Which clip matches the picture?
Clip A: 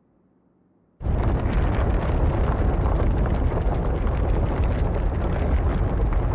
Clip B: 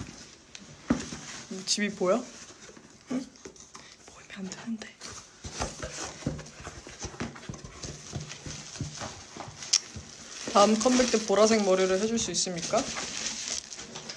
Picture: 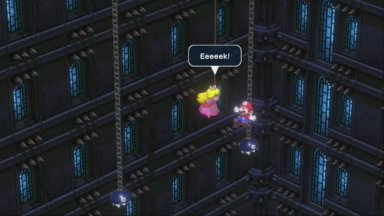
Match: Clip A